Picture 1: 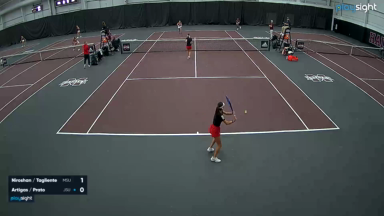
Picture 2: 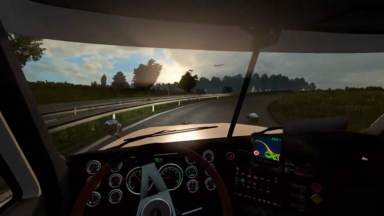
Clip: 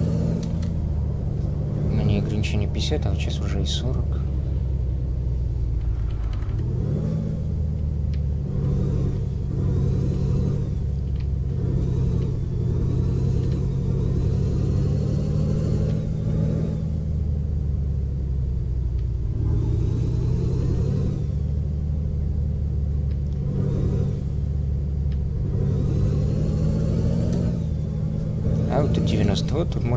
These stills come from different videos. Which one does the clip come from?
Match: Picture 2